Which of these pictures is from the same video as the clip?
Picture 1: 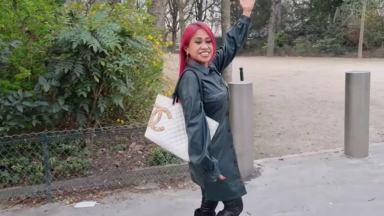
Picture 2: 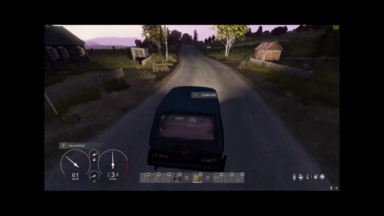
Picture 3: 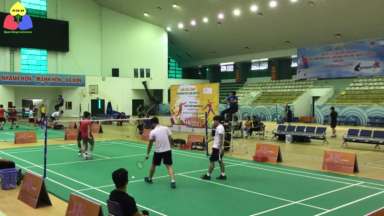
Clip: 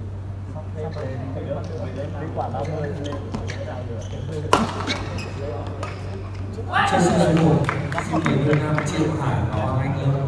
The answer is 3